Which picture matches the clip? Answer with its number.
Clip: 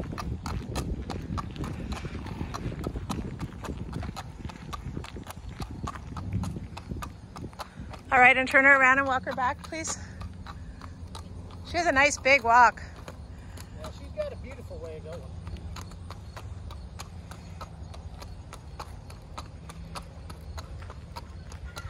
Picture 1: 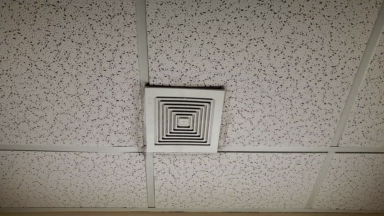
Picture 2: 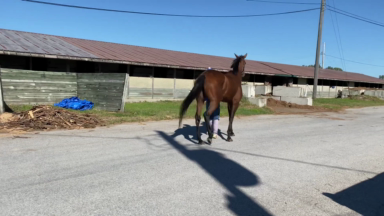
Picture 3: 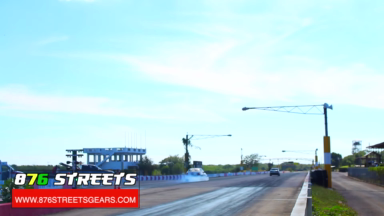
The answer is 2